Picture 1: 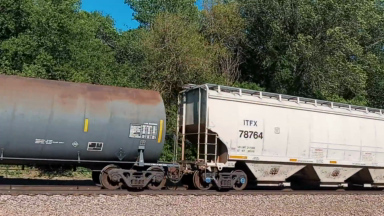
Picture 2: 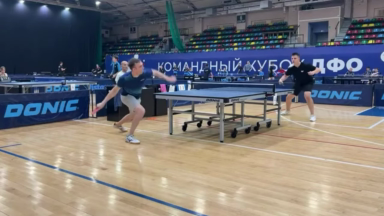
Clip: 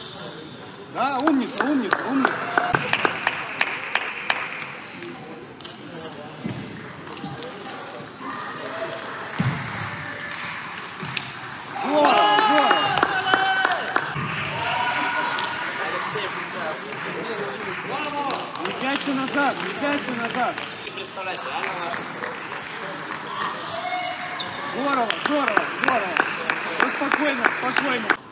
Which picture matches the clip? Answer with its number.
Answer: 2